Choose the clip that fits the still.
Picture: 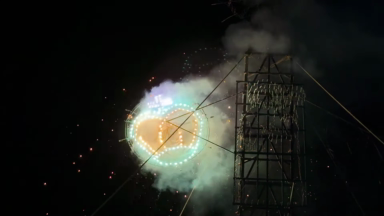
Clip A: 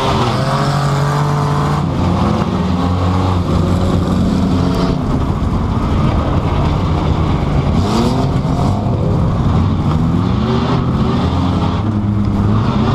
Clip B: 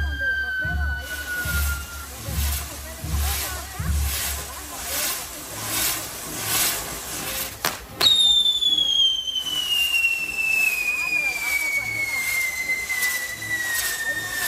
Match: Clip B